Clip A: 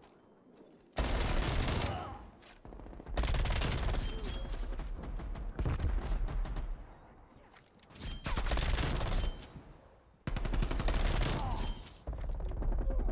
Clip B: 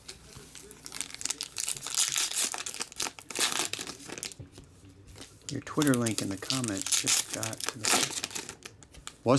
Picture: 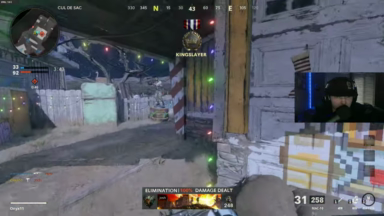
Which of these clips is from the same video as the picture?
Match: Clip A